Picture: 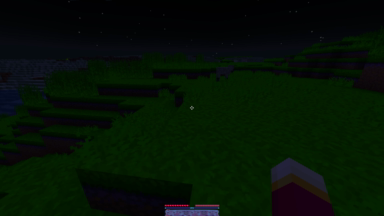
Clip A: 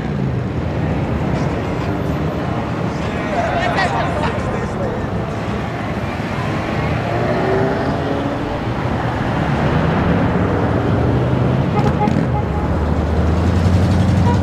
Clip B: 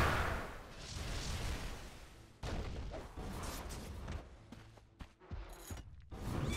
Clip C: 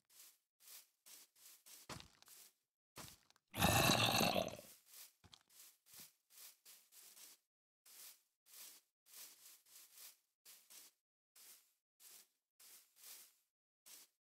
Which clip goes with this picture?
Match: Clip C